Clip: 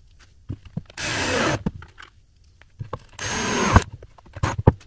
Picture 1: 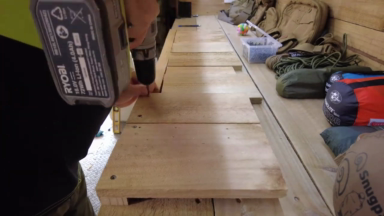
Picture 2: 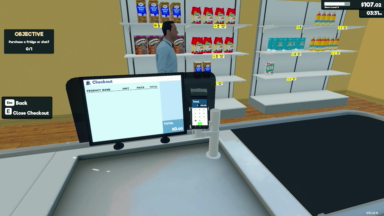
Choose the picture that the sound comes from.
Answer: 1